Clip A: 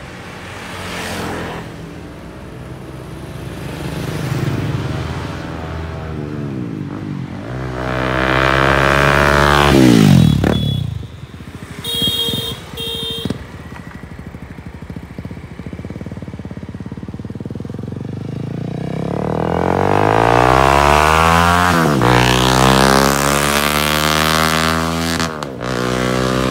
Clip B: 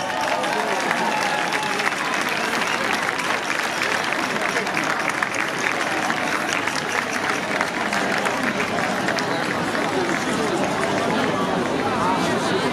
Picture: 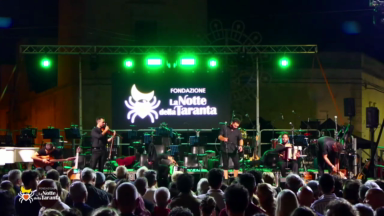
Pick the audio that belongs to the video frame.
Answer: B